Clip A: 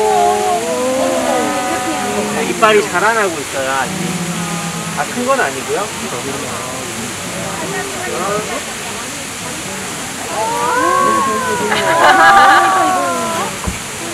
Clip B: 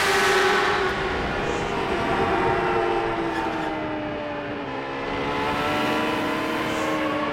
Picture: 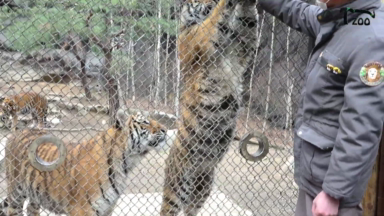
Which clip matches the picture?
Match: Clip A